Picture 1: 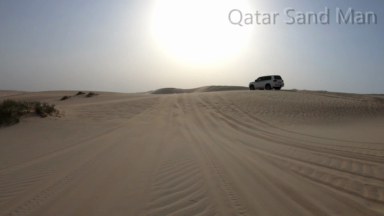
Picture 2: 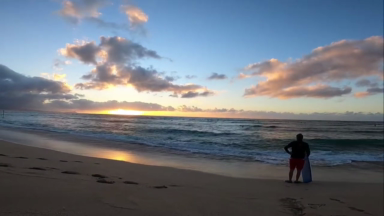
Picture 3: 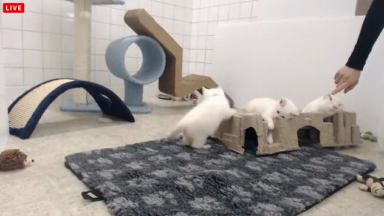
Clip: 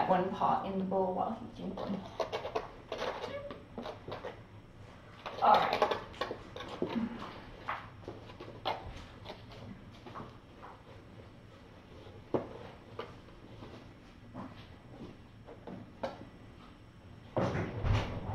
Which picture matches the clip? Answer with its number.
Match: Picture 3